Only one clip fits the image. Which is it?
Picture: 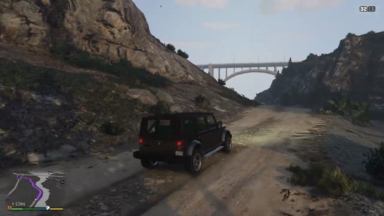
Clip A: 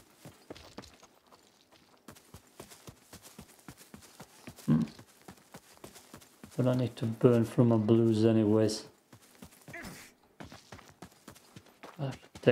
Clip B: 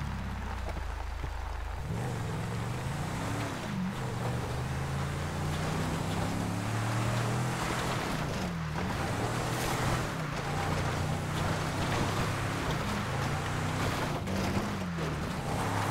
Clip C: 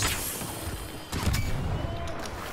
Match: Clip B